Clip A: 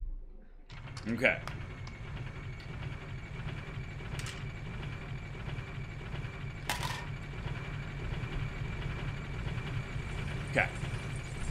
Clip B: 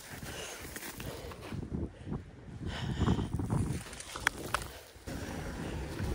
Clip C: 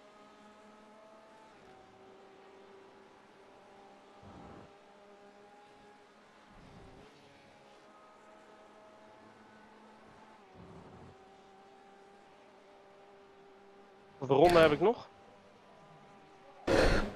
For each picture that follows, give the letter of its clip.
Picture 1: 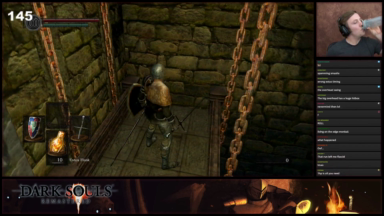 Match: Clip A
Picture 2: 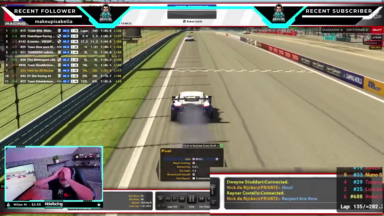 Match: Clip C